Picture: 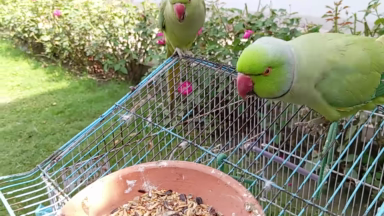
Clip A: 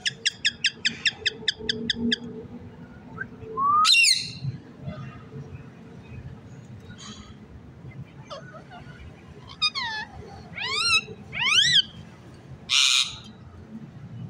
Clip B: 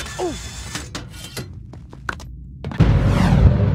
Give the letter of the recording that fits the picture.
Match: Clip A